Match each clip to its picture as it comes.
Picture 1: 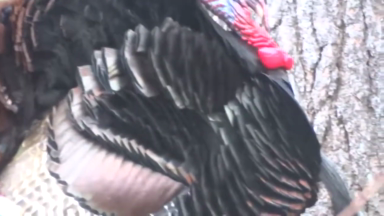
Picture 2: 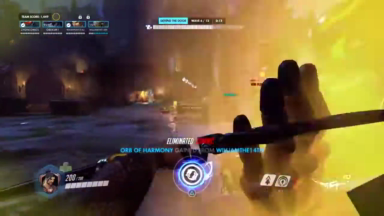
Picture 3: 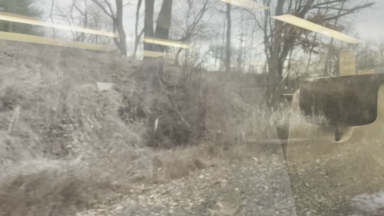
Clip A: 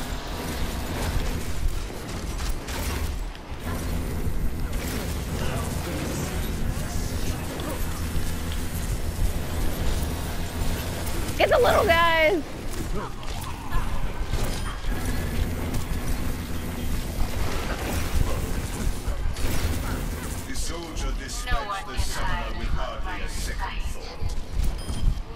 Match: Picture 2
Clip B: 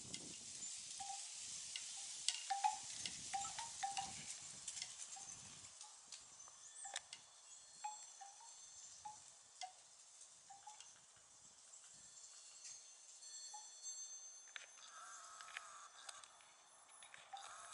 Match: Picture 1